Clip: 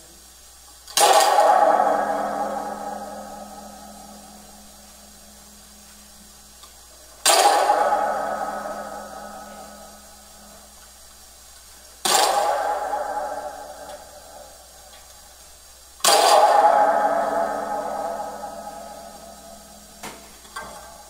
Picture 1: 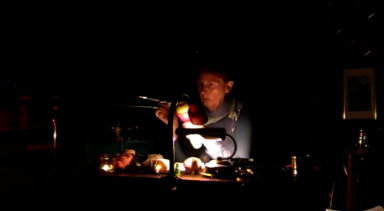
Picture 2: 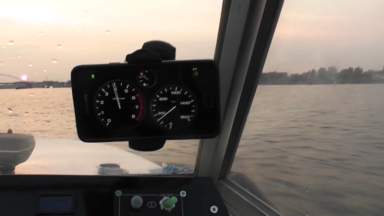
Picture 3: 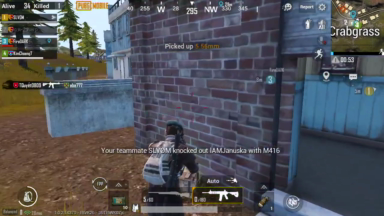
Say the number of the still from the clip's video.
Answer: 1